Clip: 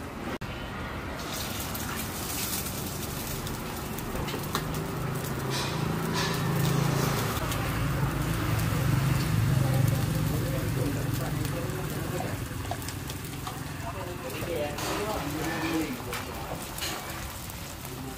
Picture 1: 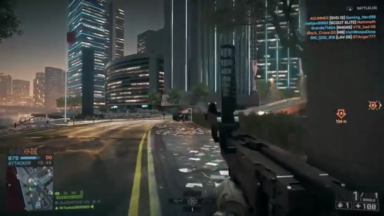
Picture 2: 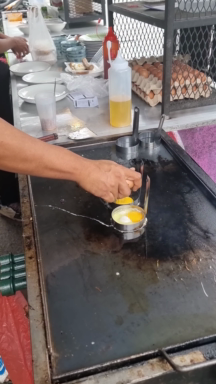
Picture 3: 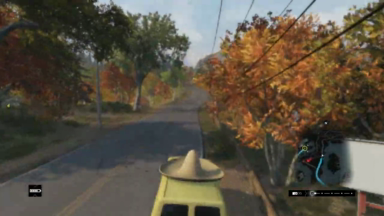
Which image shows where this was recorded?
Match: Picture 2